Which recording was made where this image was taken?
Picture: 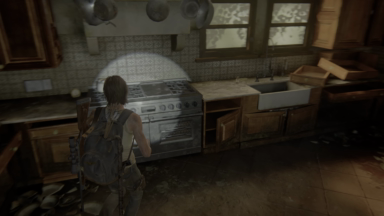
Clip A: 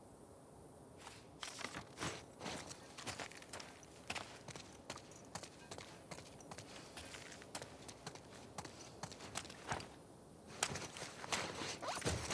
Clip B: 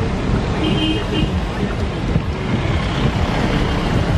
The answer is A